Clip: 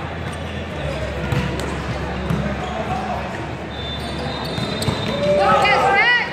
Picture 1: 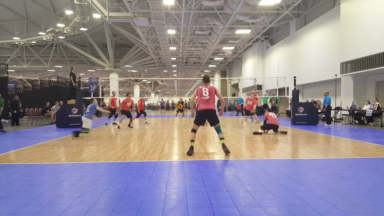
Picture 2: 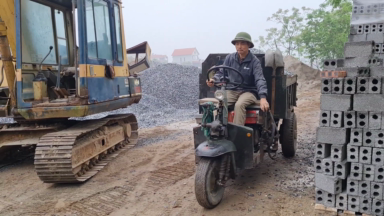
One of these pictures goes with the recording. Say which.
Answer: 1